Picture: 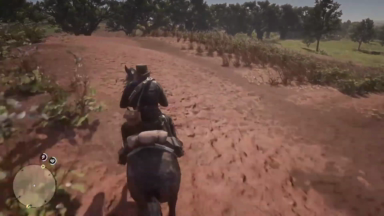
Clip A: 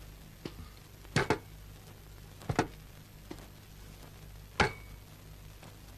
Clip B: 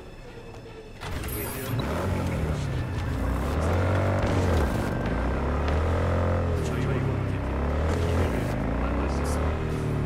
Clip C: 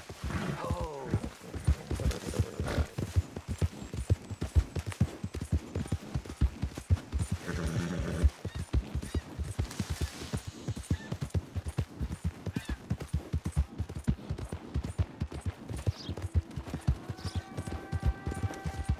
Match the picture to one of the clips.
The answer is C